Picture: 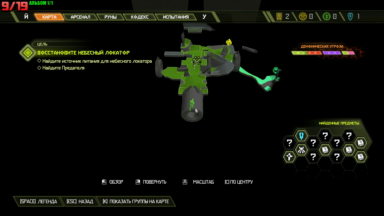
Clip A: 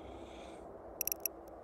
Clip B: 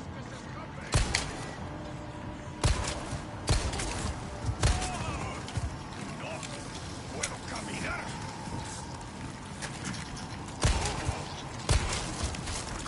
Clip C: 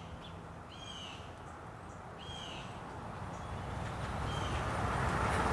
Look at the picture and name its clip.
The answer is A